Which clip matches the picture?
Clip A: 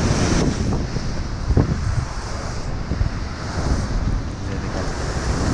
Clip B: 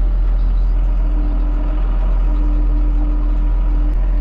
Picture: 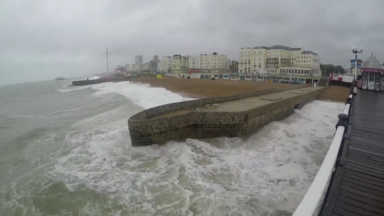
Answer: A